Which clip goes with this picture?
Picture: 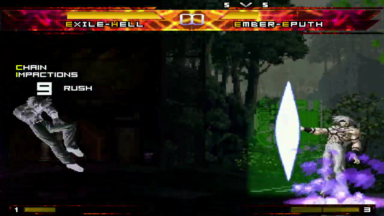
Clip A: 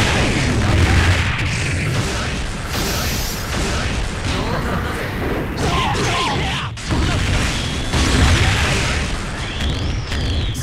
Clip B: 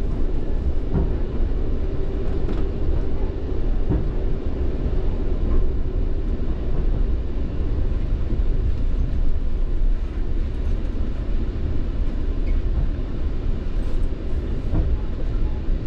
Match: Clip A